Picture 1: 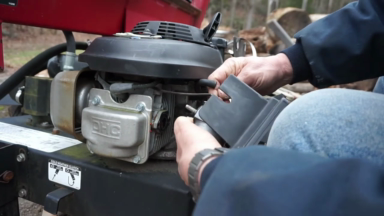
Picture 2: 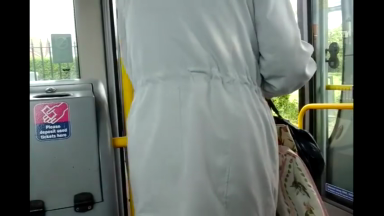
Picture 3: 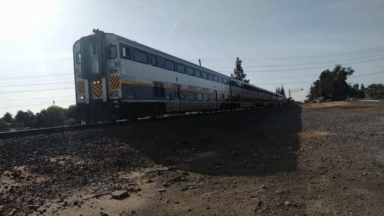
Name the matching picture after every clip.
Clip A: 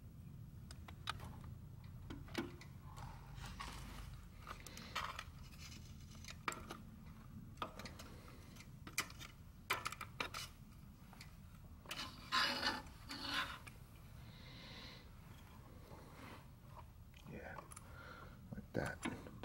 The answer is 1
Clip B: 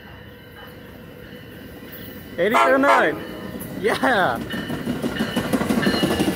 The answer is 3